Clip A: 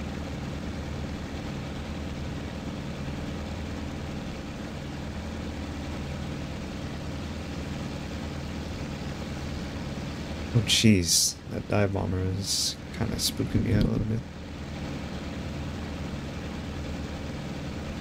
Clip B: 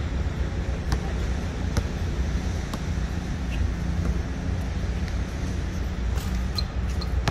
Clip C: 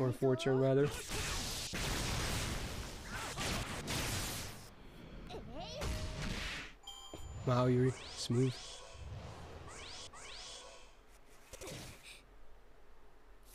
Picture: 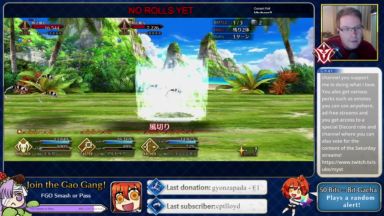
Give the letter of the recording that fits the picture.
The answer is C